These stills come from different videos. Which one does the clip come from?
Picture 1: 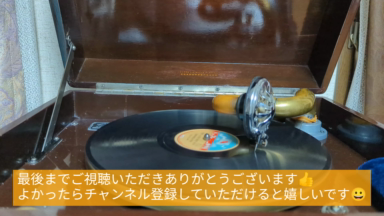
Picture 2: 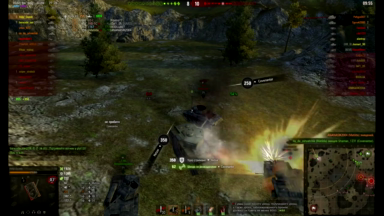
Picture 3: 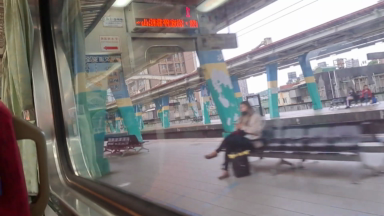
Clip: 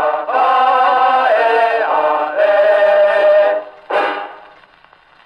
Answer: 1